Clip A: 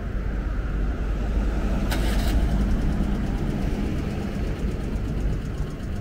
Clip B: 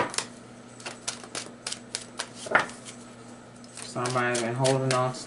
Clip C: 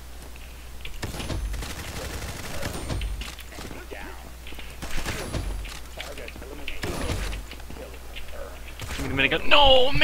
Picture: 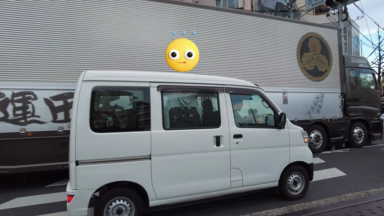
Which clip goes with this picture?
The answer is A